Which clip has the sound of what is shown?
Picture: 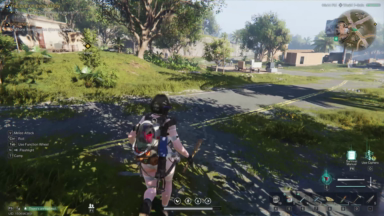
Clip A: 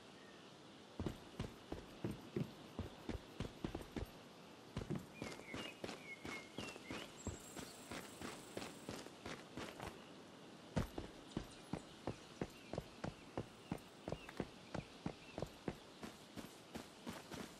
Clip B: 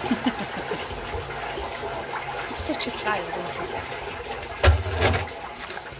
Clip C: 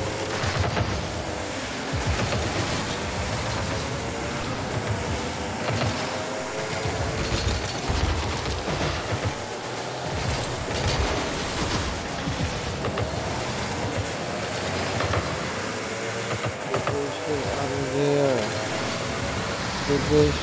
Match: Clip A